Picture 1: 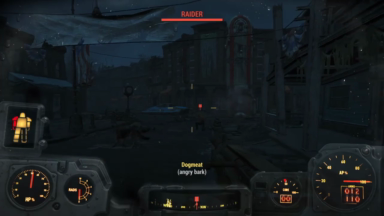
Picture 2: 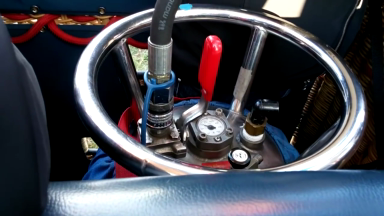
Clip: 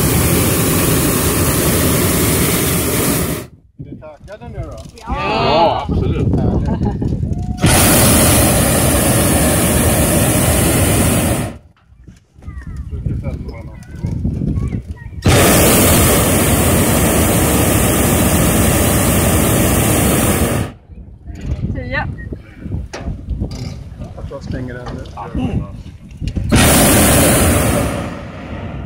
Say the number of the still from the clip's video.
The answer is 2